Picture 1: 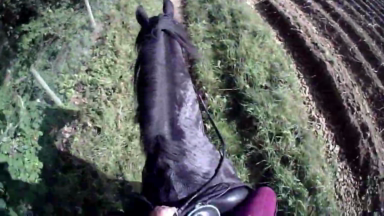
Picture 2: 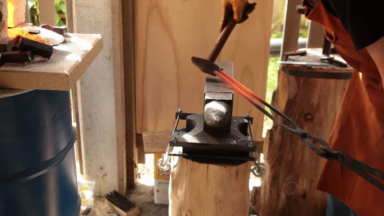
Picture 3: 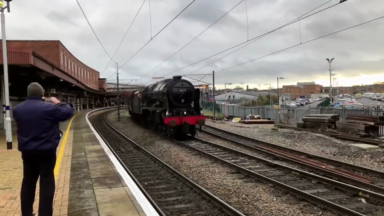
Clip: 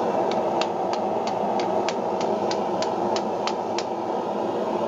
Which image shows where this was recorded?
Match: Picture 2